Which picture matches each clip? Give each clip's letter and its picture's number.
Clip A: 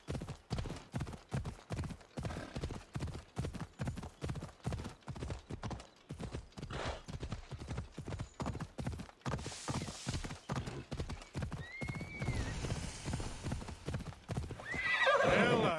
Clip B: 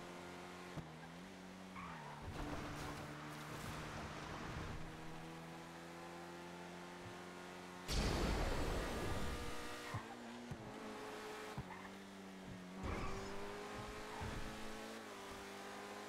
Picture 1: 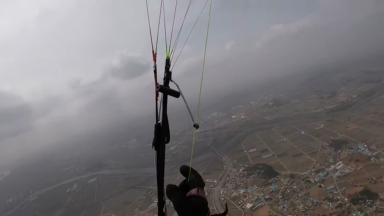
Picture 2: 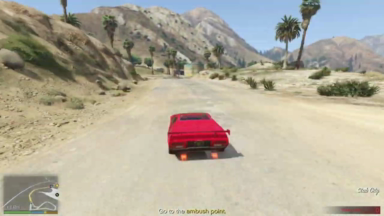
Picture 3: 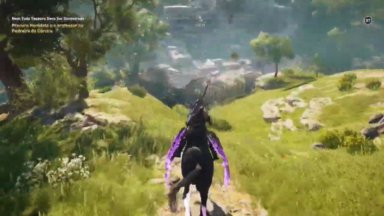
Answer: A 3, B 2